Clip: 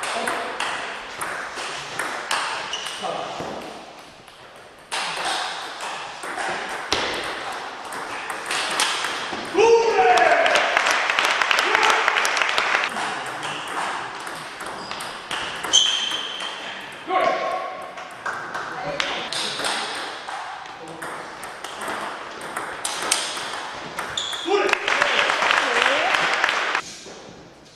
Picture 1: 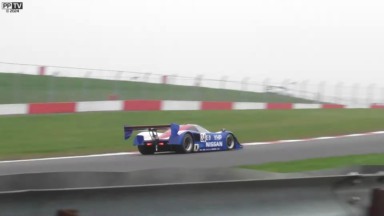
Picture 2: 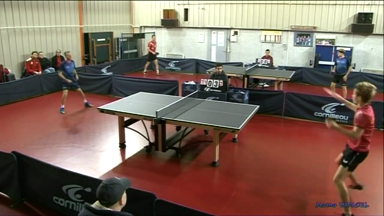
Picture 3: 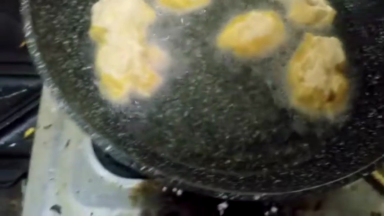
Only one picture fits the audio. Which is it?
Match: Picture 2